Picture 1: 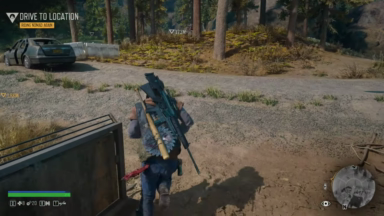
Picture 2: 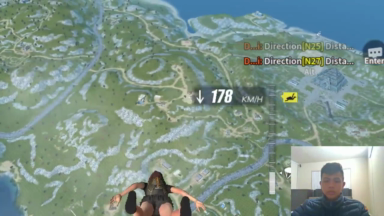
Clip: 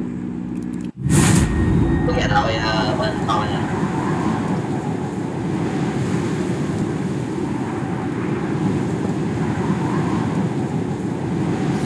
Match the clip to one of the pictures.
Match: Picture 2